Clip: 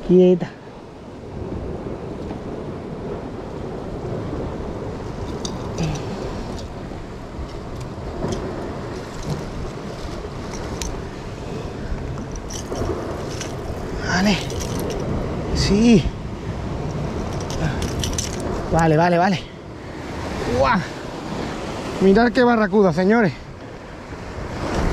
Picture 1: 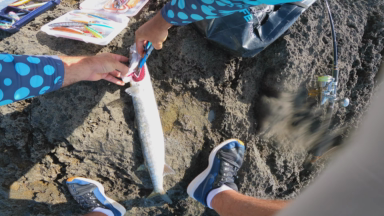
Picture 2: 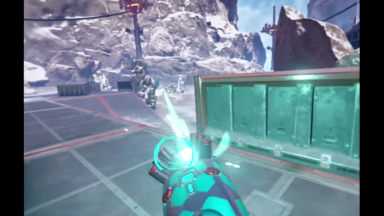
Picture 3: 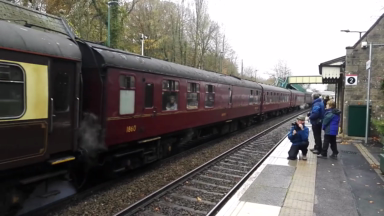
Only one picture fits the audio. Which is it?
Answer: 1